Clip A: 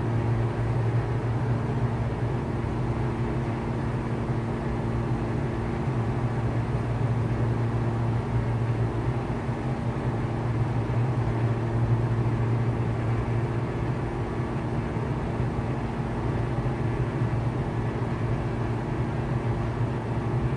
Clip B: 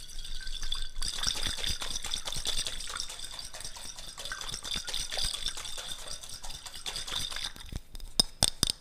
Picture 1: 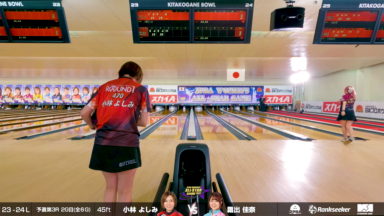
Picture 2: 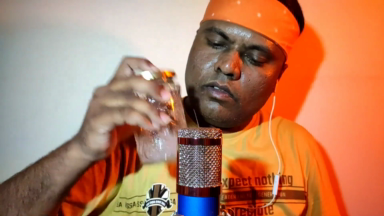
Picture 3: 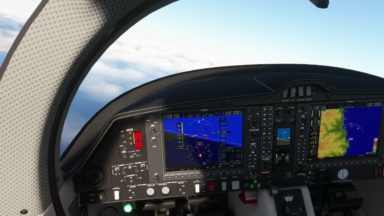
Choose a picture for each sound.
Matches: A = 3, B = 2